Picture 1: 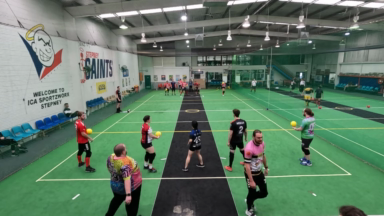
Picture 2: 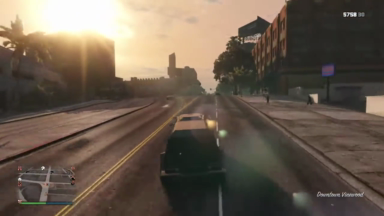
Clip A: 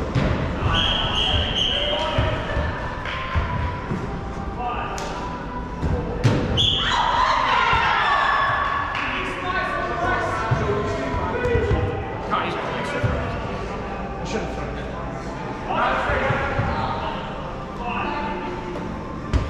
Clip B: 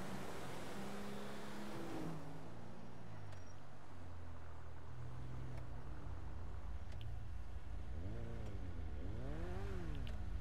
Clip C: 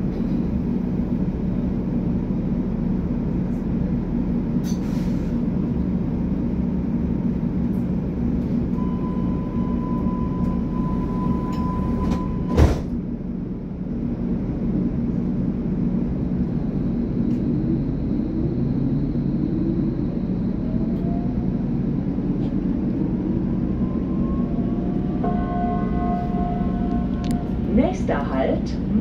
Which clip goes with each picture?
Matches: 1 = A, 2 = B